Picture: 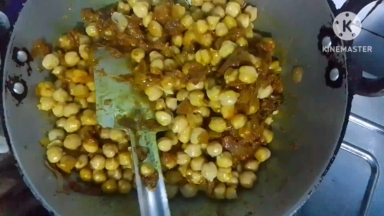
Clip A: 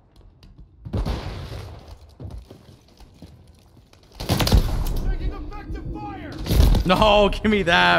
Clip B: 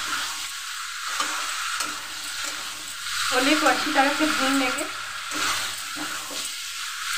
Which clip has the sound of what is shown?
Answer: B